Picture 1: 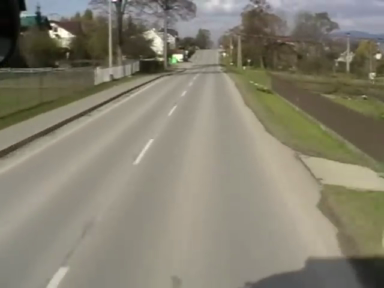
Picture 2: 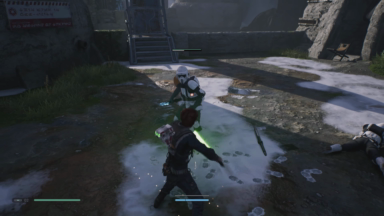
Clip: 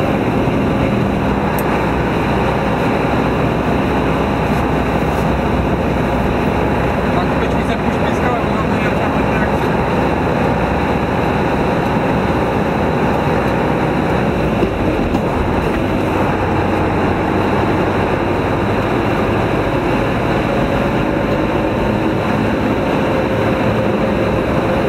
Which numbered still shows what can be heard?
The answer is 1